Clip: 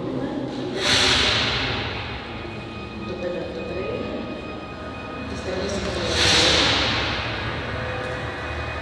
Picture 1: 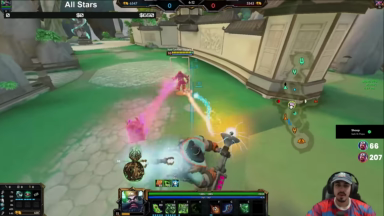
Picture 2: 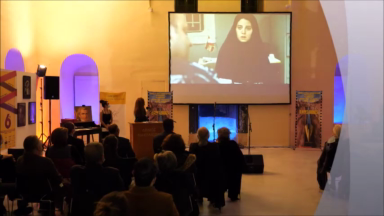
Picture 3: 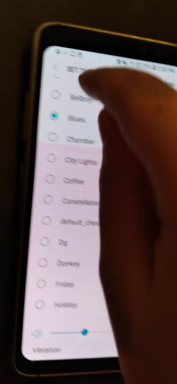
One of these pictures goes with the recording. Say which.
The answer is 2